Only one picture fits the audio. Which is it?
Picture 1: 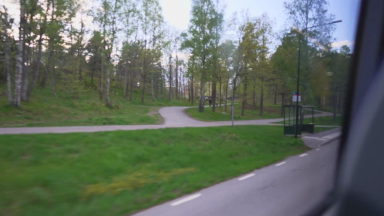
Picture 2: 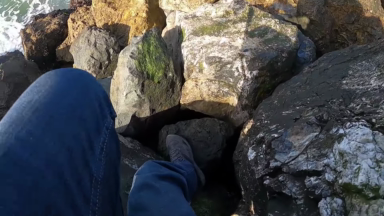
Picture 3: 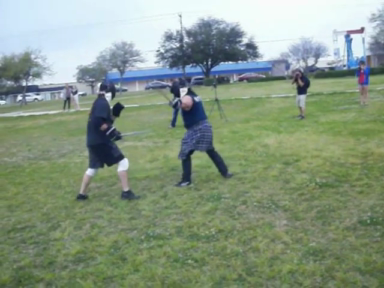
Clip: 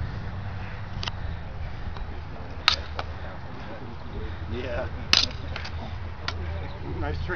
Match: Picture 3